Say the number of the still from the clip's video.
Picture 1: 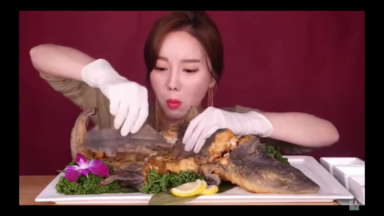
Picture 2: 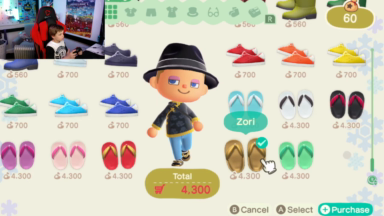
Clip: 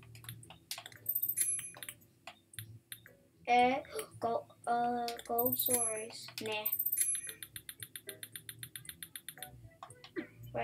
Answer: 2